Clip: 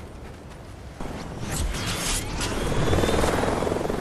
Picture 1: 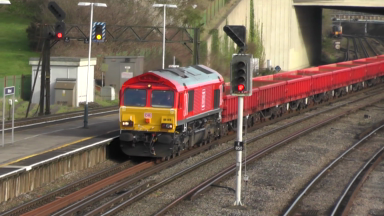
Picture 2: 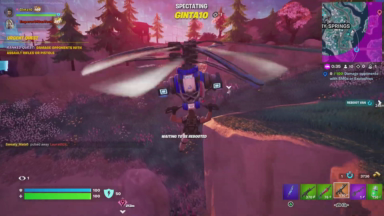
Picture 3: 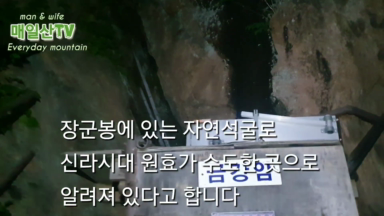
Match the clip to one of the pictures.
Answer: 2